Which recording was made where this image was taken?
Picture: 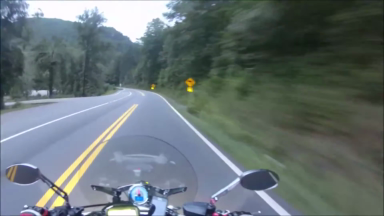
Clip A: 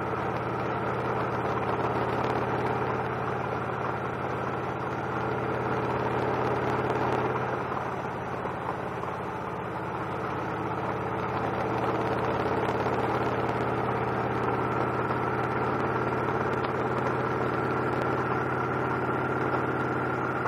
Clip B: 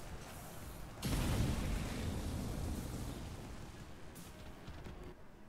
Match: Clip A